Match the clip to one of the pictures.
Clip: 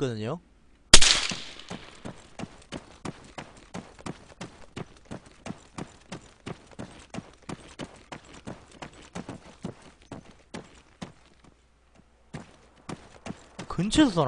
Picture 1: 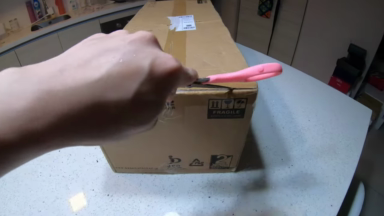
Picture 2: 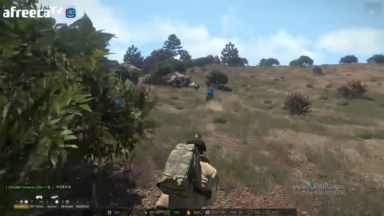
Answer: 2